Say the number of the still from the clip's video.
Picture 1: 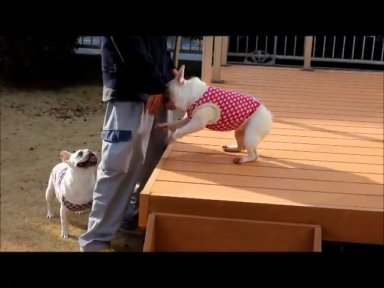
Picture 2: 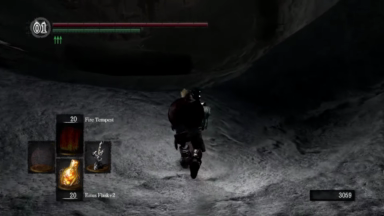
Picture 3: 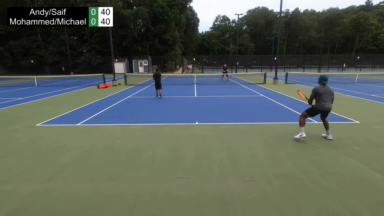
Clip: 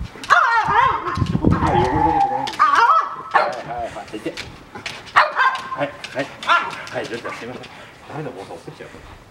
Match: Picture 1